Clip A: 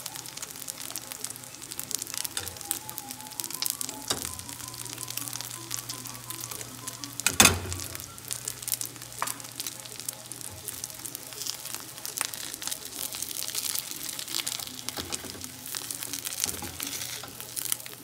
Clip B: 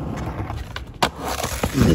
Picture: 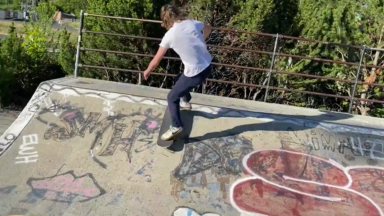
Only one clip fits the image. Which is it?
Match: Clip B